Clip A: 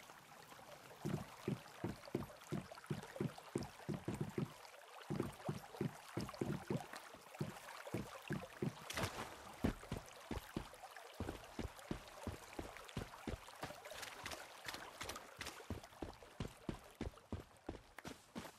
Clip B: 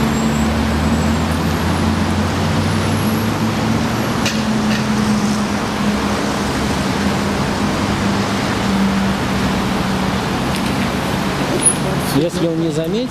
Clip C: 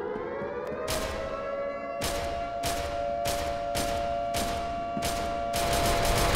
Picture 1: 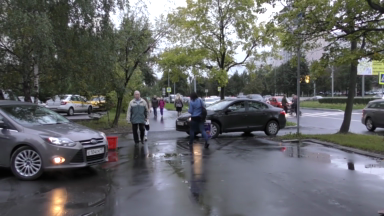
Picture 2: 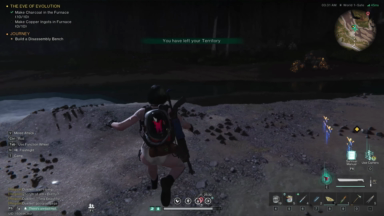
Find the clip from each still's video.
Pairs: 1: B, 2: A